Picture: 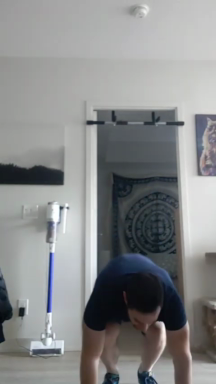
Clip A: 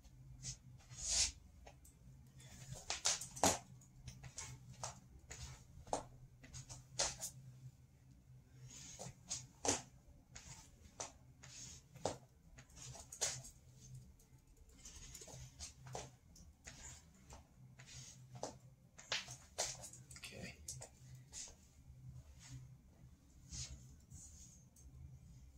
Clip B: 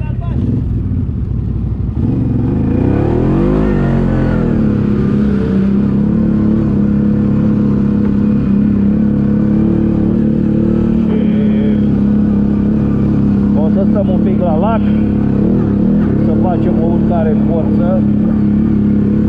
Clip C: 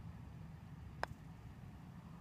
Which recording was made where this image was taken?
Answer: A